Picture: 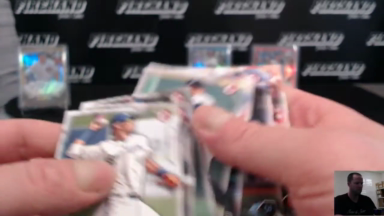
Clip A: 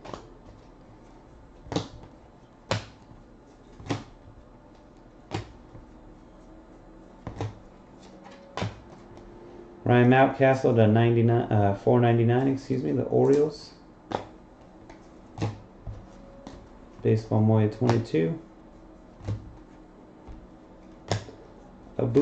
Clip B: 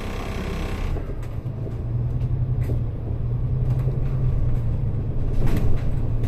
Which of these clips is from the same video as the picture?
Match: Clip A